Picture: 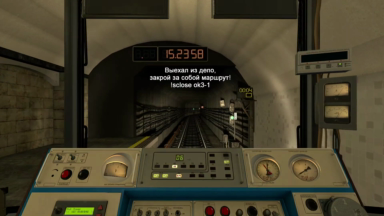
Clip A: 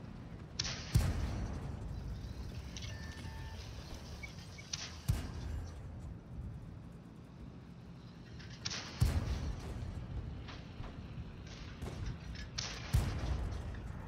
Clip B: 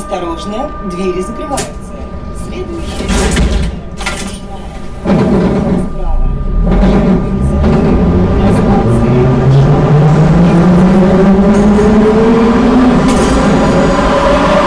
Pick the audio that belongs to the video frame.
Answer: B